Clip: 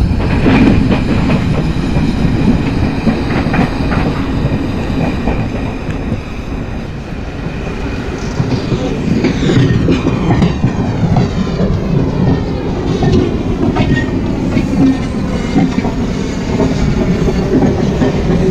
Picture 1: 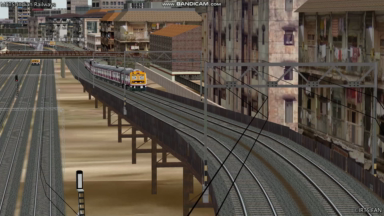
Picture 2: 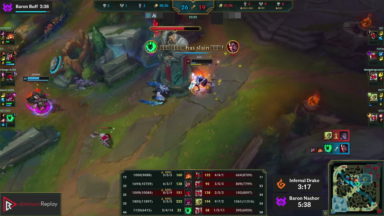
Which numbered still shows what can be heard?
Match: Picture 1